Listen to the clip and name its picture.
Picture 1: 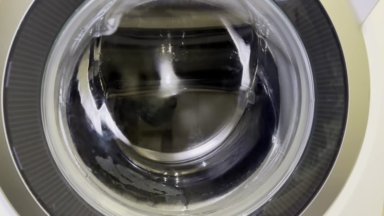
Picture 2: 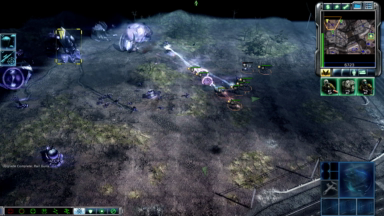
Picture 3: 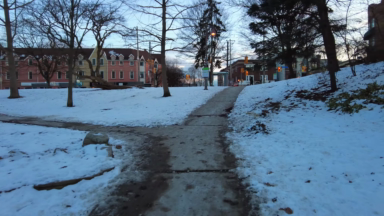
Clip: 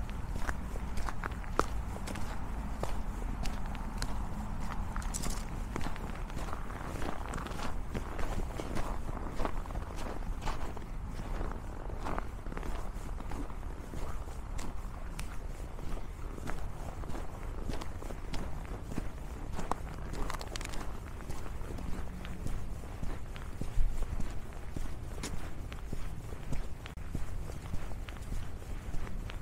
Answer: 3